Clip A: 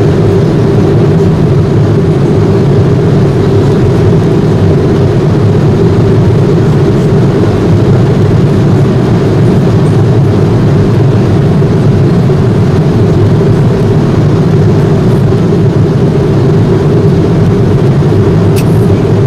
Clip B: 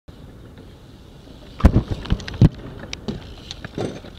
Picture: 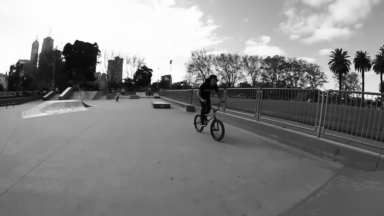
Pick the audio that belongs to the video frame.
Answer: B